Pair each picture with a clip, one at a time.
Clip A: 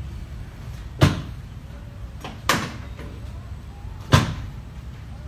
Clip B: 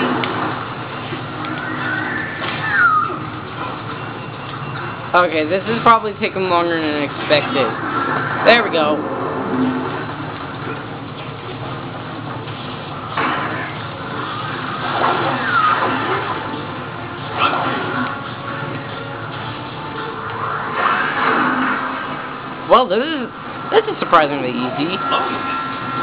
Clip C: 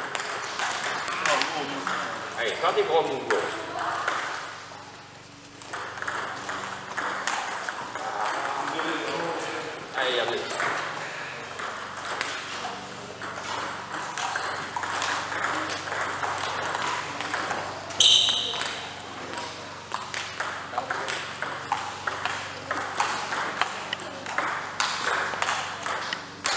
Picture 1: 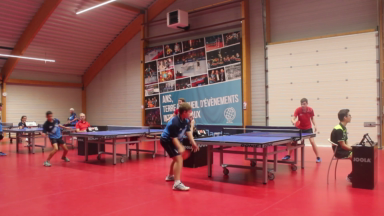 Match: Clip C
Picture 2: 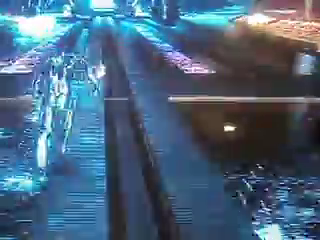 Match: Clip B